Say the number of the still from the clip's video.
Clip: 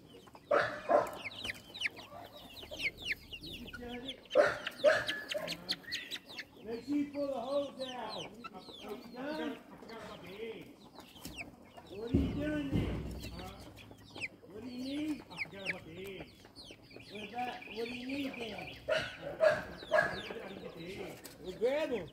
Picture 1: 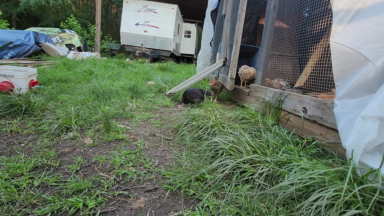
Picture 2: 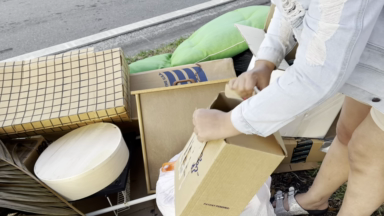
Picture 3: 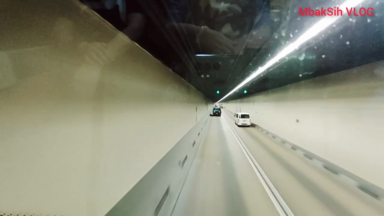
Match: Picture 1